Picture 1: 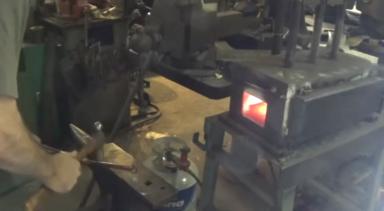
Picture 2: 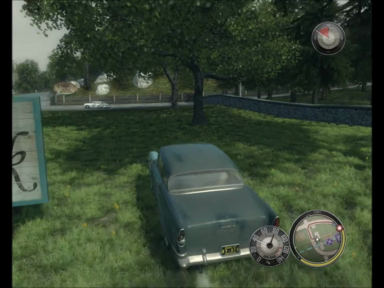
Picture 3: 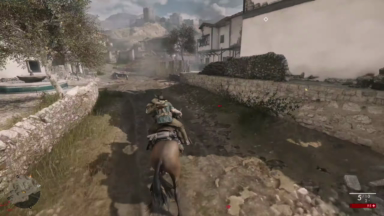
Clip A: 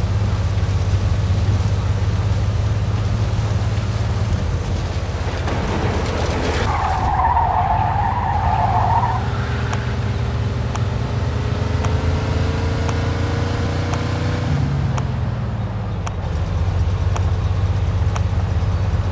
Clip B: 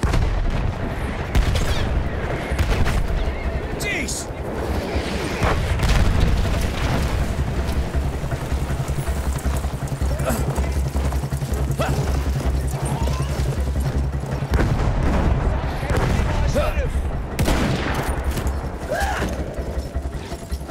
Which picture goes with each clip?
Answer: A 2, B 3